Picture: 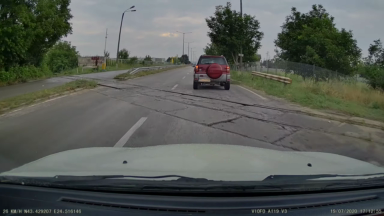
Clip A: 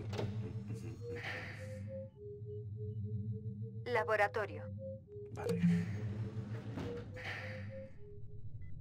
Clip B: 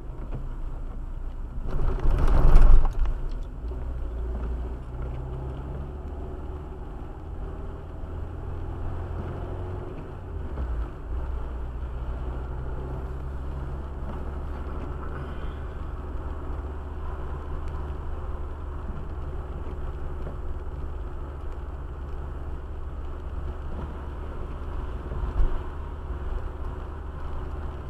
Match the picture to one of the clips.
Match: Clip B